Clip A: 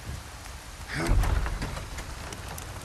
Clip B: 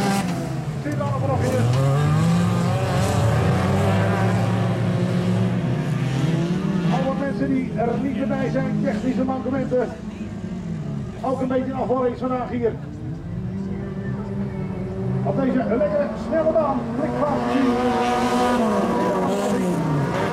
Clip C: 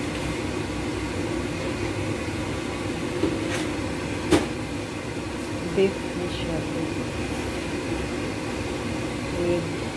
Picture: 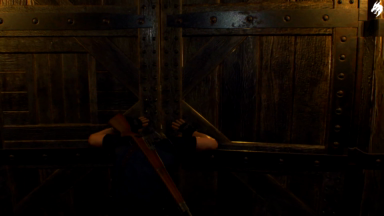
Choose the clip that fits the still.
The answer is A